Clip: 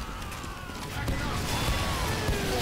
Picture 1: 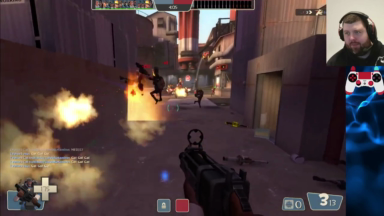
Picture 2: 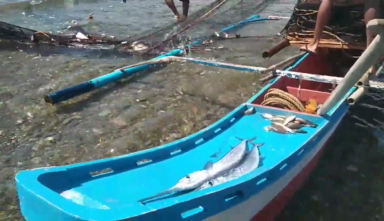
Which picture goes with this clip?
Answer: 1